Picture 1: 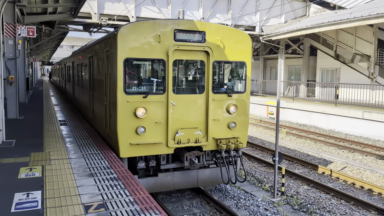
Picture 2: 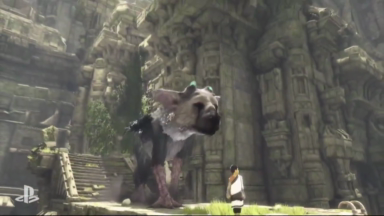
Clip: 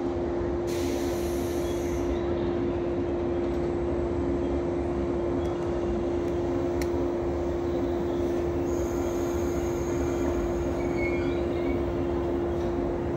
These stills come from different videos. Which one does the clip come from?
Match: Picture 1